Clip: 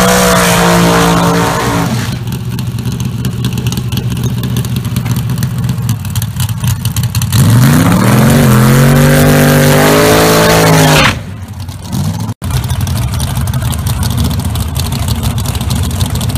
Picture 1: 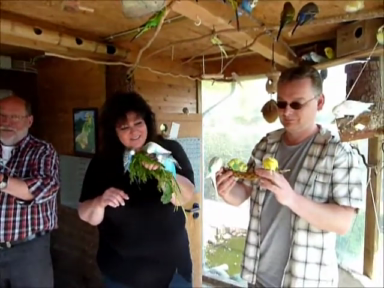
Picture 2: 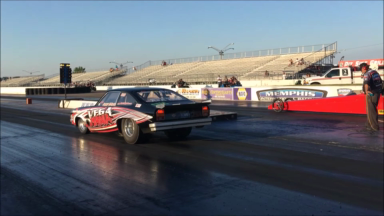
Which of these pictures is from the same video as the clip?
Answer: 2